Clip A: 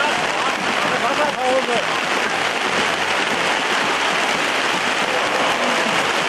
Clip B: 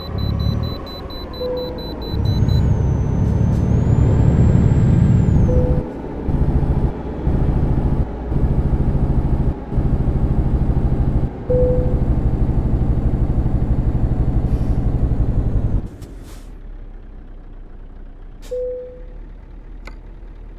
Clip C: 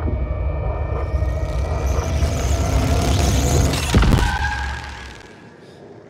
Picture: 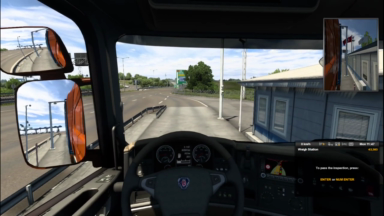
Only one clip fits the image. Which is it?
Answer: B